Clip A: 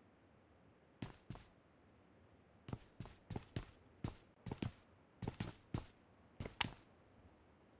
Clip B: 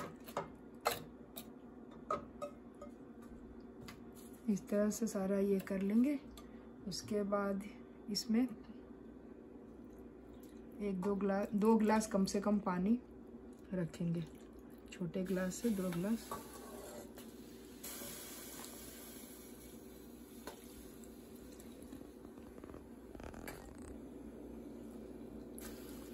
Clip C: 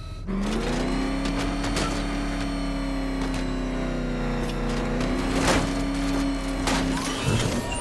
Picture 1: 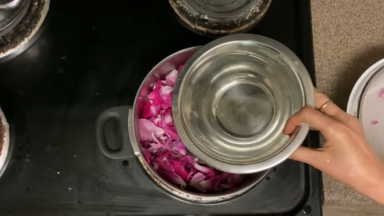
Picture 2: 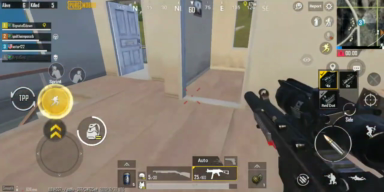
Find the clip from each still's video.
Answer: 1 B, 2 A